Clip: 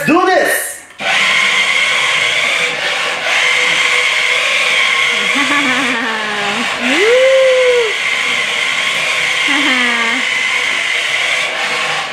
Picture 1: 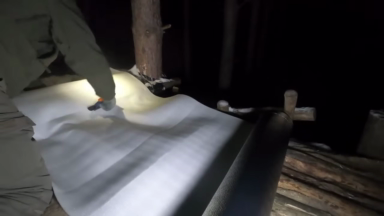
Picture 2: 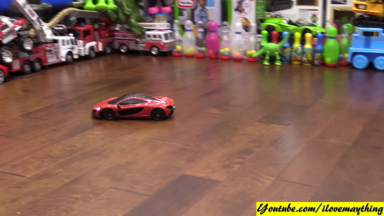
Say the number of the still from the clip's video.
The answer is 2